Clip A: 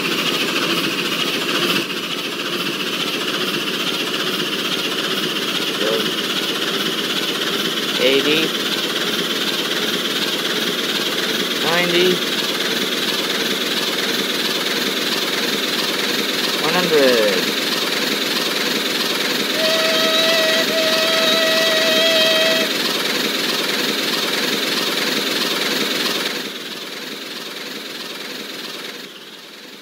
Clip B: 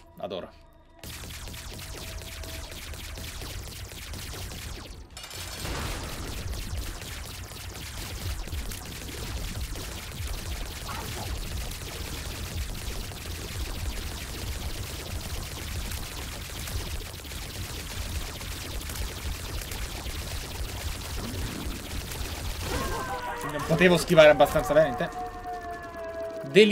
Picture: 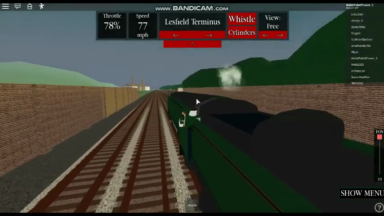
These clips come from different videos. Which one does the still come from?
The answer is A